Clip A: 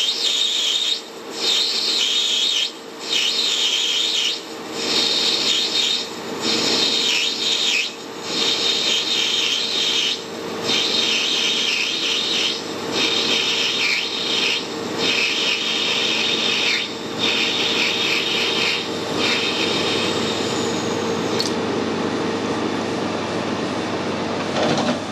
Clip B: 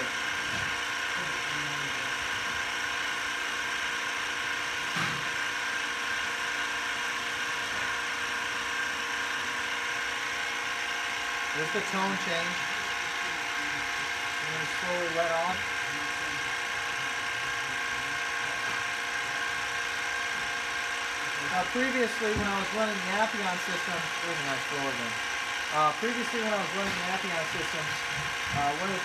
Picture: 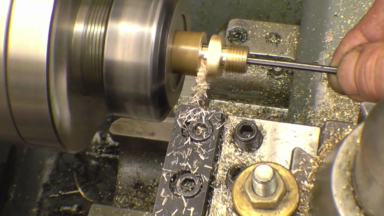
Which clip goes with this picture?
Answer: A